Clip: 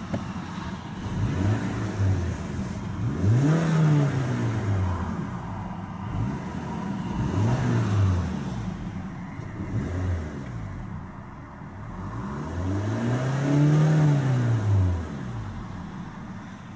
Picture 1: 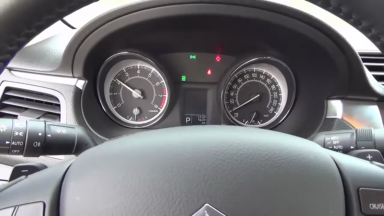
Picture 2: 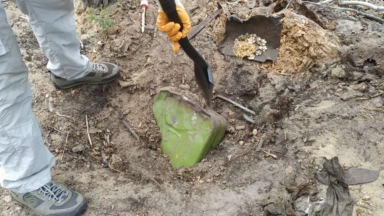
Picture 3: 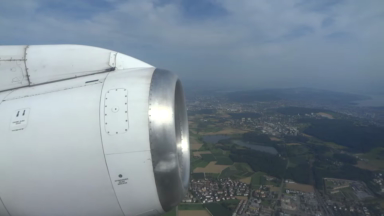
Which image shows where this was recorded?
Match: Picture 1